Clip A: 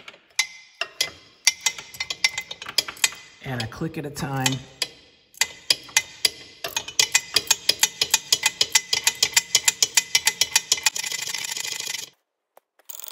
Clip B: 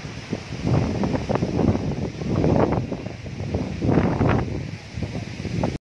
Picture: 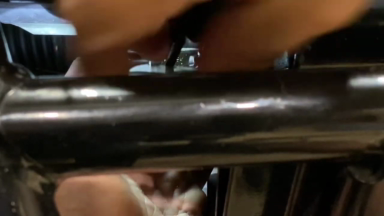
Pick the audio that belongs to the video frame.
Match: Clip A